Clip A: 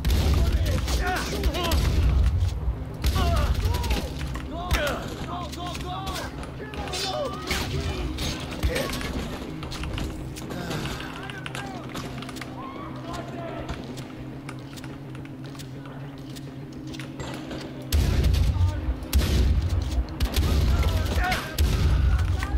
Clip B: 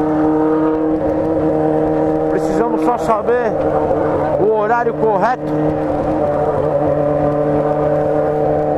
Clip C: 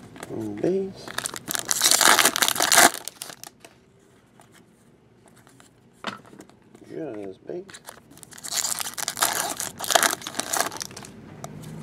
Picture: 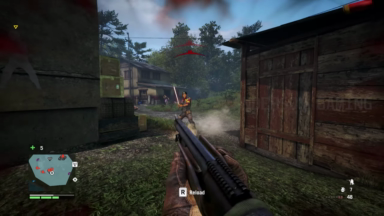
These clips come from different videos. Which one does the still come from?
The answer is A